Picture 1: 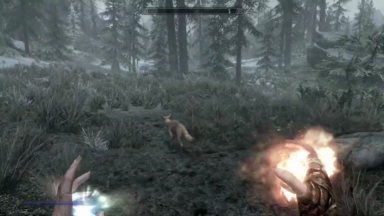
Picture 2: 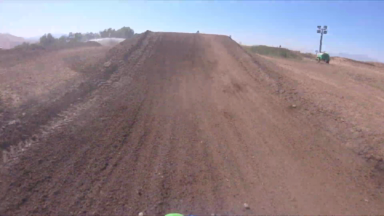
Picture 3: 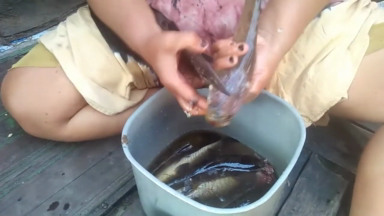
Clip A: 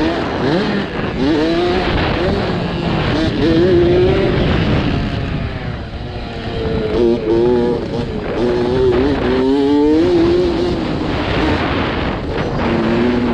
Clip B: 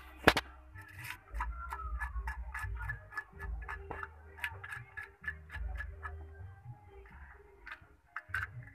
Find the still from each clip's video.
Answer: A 2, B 3